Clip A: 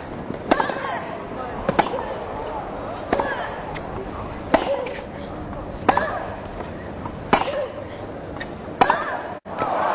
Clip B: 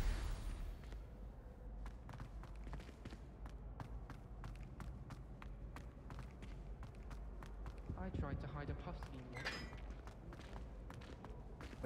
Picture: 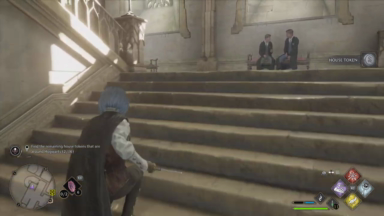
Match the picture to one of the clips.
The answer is B